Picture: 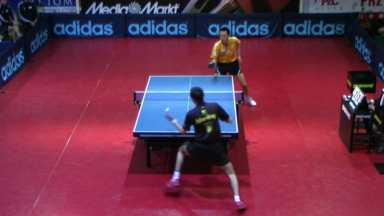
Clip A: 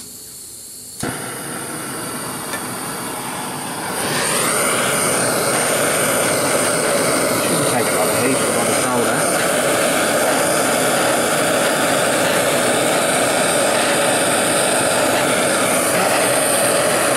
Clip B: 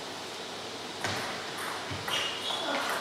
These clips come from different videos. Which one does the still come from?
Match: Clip B